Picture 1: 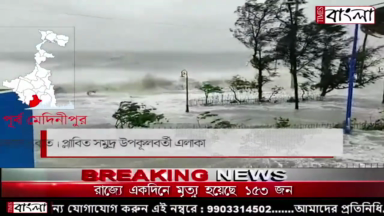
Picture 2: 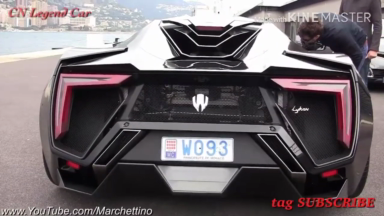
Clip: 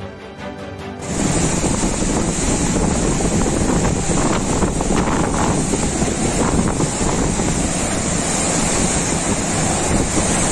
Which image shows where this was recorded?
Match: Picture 1